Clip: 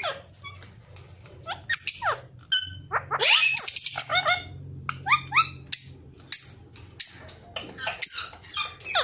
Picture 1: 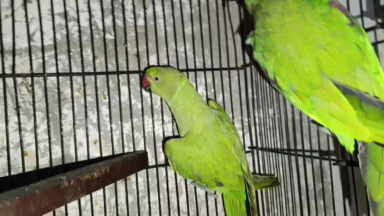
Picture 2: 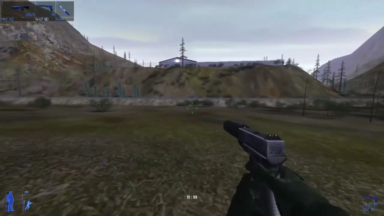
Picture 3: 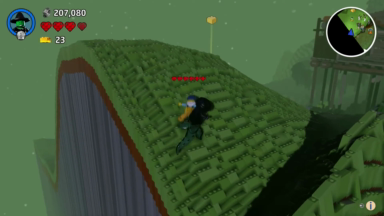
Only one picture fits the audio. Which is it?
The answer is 1